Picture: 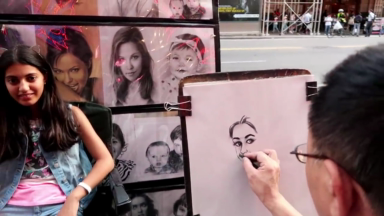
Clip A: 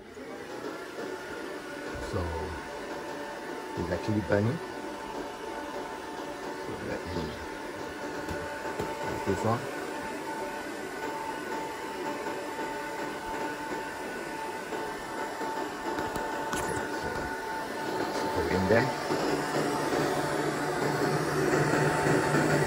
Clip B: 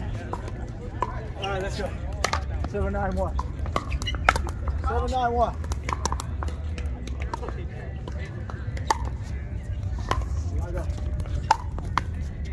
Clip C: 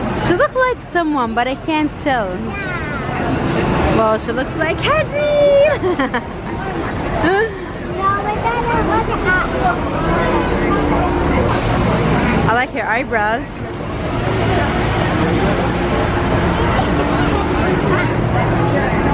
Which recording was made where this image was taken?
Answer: C